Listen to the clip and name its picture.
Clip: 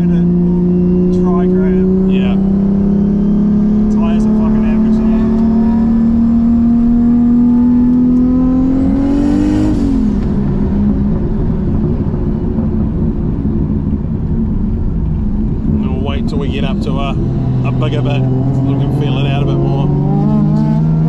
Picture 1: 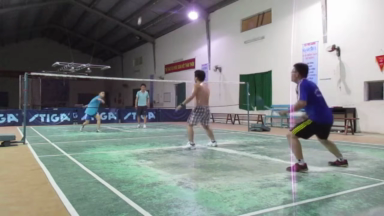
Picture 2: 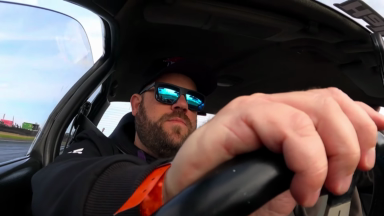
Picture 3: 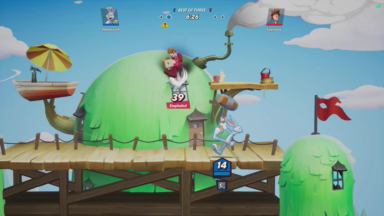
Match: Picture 2